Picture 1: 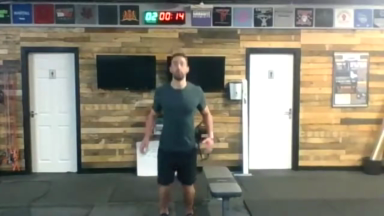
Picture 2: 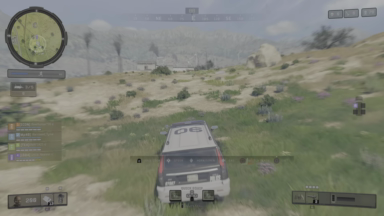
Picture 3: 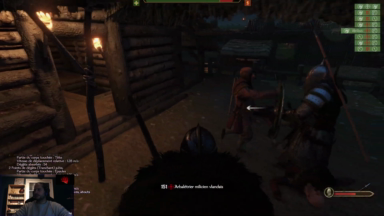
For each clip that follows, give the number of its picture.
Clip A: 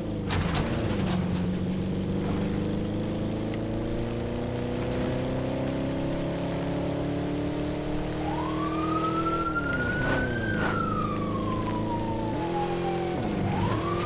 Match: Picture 2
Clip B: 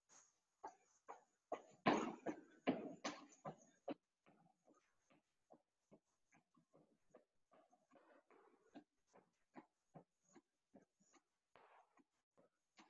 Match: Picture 1